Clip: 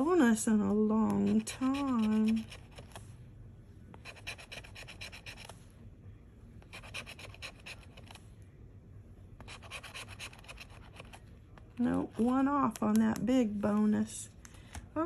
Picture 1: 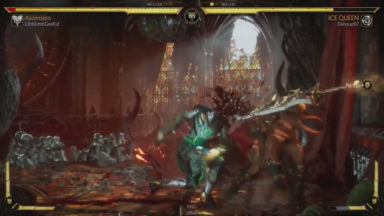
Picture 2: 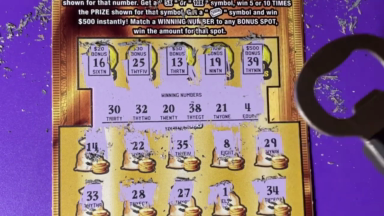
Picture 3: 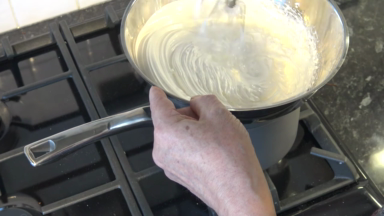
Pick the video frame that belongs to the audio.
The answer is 2